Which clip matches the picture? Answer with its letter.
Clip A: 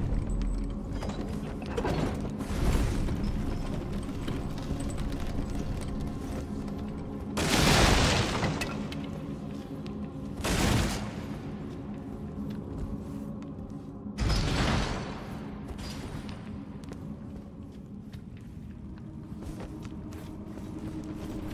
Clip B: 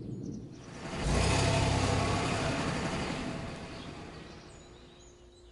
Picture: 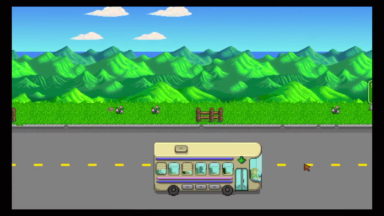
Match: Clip B